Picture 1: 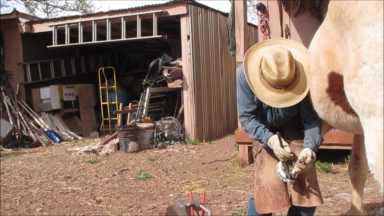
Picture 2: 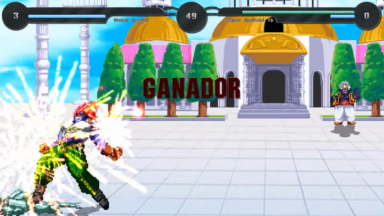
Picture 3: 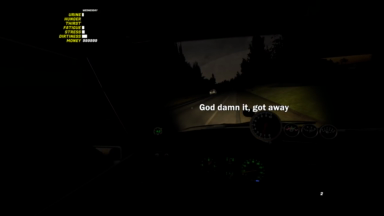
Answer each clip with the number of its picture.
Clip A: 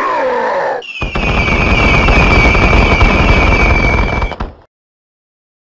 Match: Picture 2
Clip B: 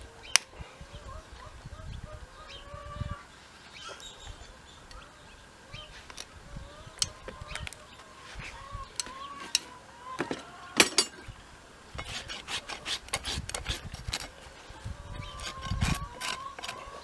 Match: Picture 1